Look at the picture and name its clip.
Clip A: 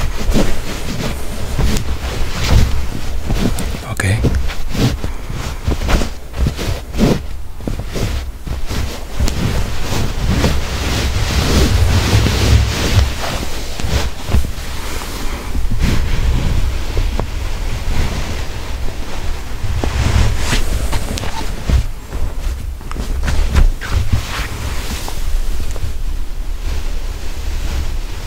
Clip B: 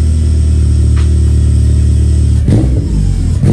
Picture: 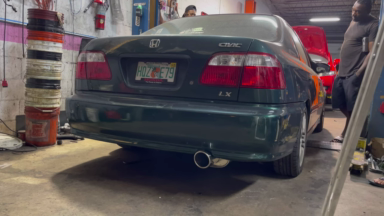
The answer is B